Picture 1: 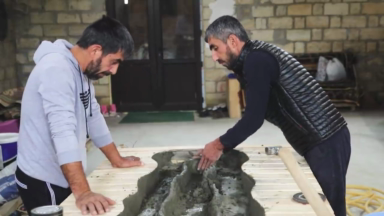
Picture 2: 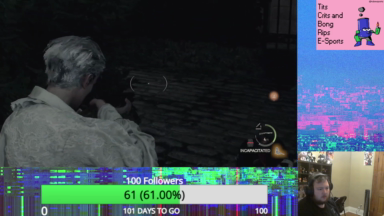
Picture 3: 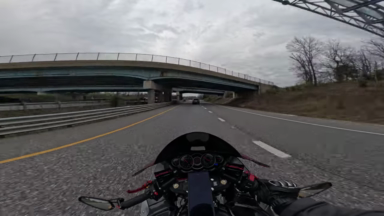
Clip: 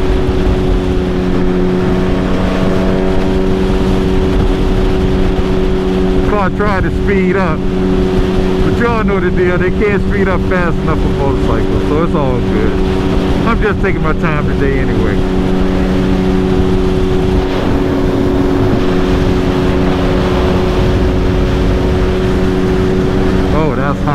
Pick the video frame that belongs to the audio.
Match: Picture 3